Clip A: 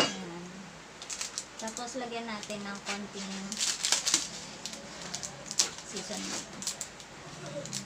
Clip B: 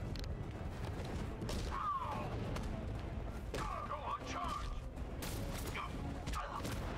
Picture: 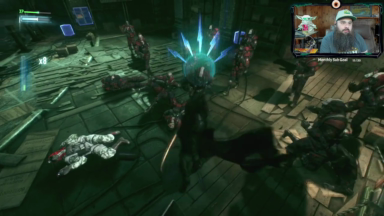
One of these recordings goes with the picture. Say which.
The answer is B